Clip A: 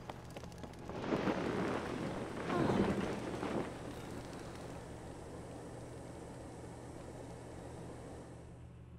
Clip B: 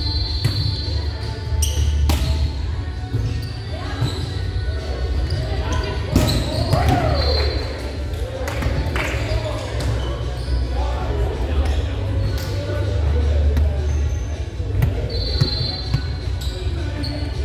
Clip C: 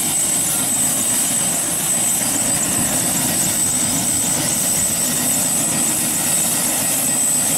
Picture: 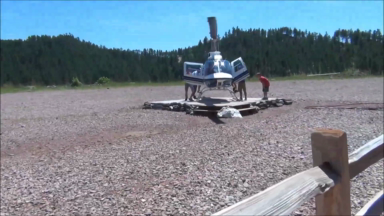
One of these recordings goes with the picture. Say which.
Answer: C